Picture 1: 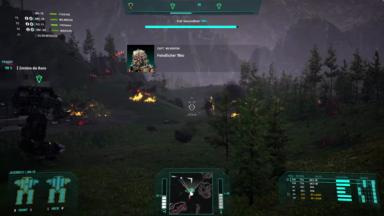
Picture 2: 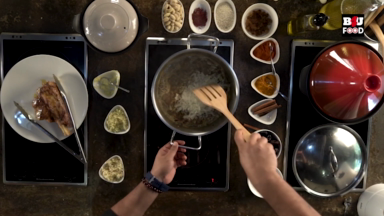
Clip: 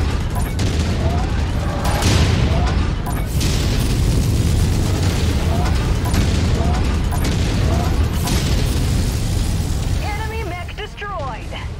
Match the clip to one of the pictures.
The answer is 1